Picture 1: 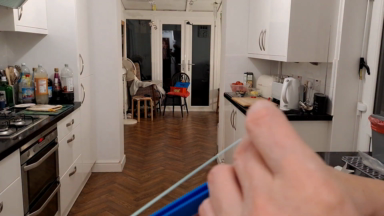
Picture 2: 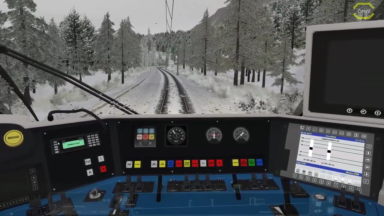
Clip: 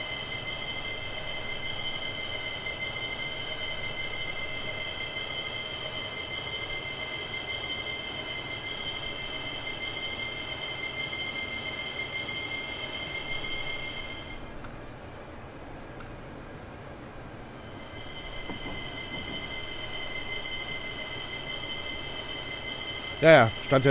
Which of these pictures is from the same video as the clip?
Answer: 2